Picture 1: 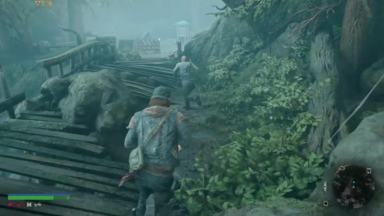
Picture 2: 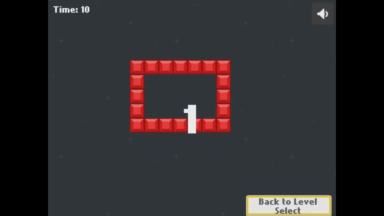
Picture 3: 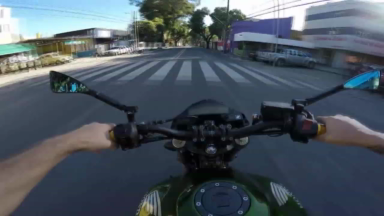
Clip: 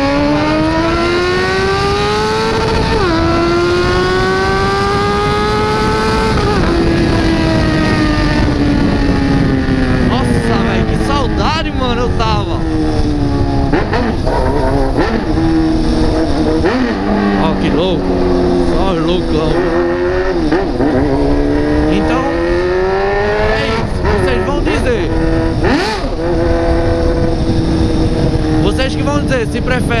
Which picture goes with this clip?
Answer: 3